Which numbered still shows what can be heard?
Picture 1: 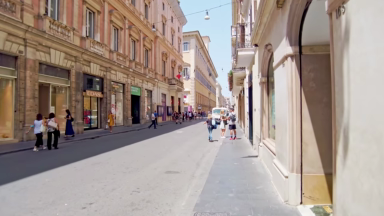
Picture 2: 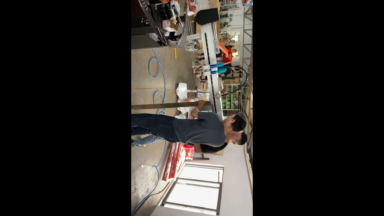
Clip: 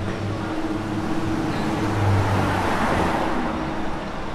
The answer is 1